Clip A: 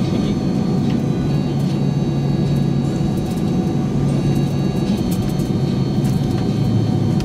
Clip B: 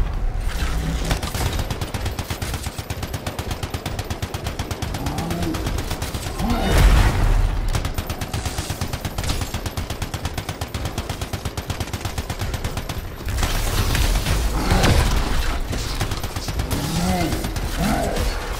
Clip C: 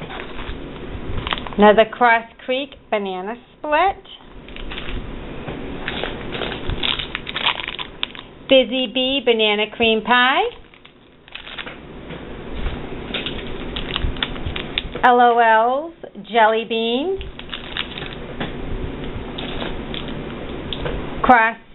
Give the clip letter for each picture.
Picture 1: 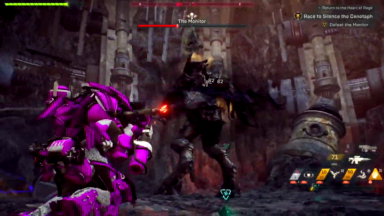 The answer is B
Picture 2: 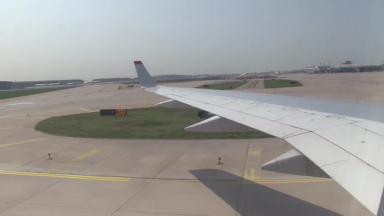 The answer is A